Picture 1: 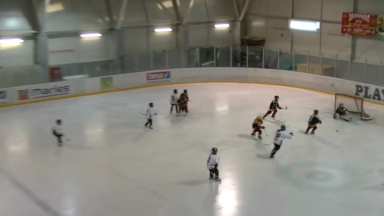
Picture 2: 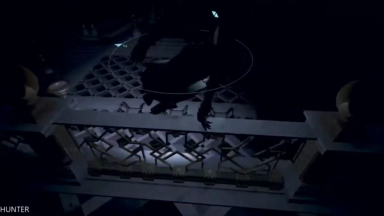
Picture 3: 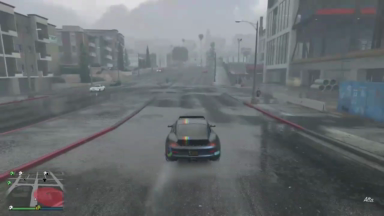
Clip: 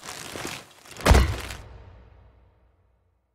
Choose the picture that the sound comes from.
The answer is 2